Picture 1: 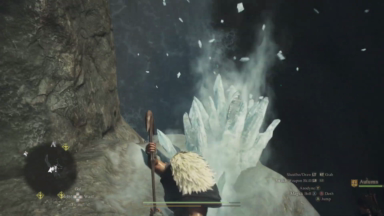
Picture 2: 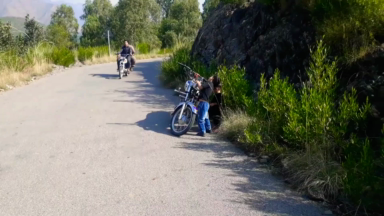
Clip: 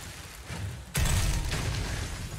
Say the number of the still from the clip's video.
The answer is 1